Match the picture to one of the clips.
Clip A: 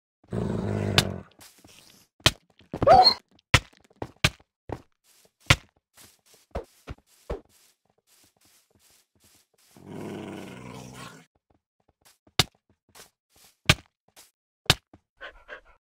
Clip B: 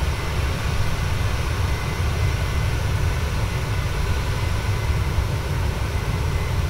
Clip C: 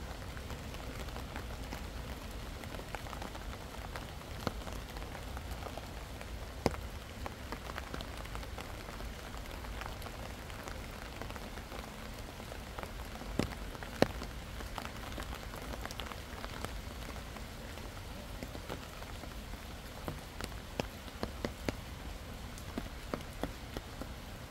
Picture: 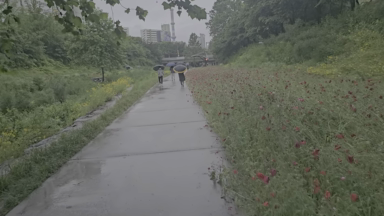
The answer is C